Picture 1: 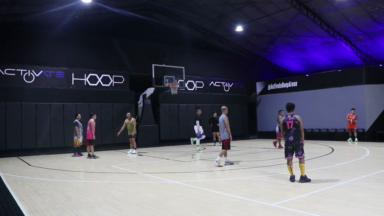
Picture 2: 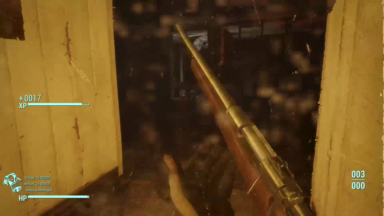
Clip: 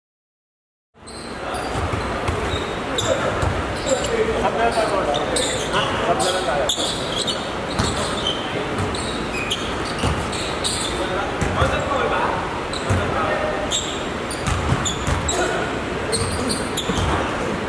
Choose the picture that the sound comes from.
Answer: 1